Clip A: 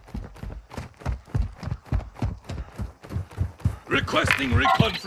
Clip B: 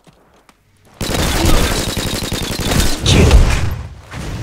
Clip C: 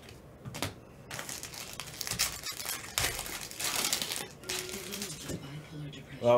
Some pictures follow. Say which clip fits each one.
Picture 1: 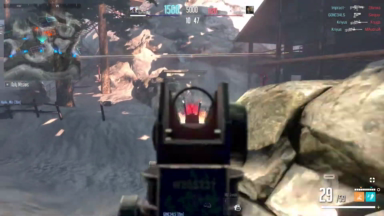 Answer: B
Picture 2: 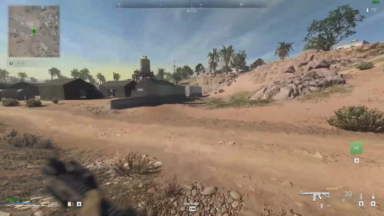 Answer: A